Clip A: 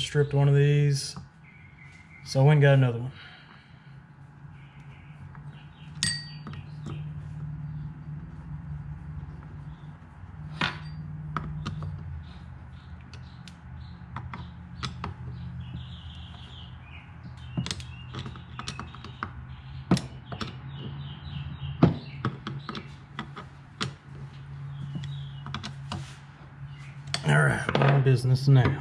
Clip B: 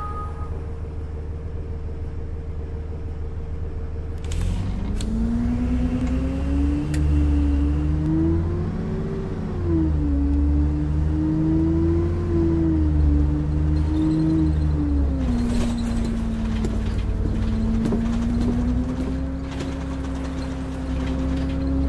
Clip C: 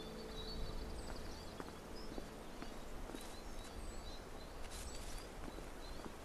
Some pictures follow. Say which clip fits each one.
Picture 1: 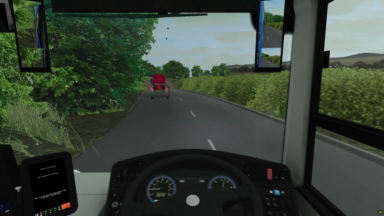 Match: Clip B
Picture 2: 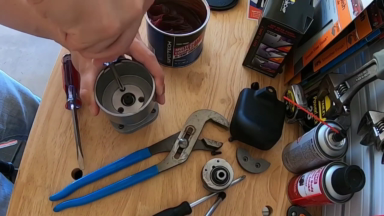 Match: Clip A